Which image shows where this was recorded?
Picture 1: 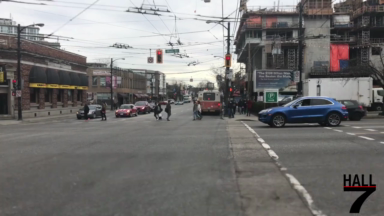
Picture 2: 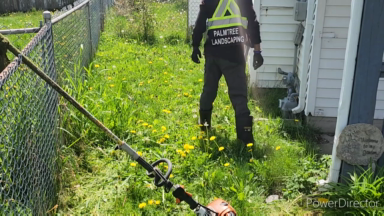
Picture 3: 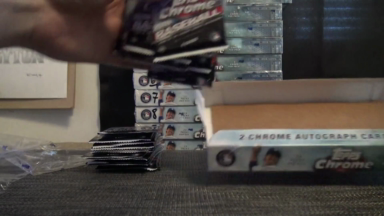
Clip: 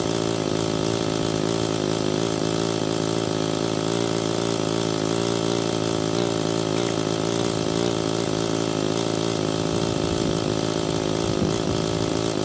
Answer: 2